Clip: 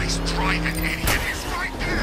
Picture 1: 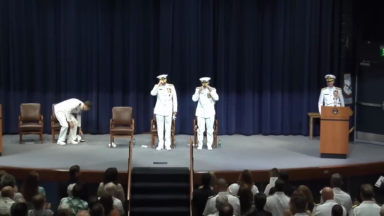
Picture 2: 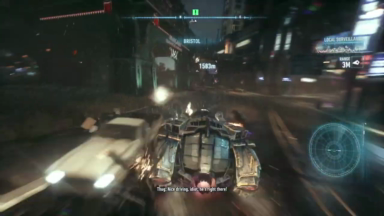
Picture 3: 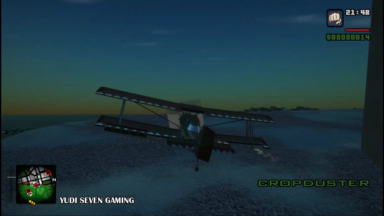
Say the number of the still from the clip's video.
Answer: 2